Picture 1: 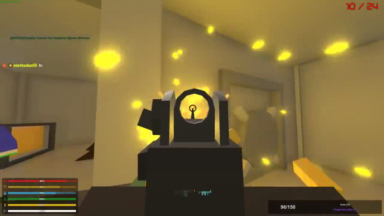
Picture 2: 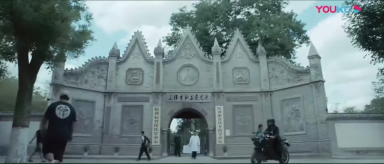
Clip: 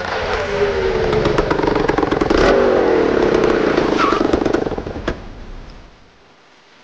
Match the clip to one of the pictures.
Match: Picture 2